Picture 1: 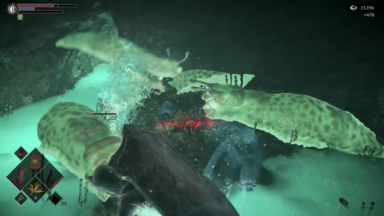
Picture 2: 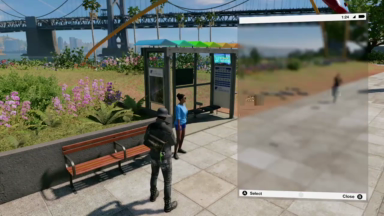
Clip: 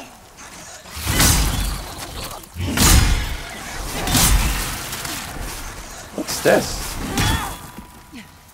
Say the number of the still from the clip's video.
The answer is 1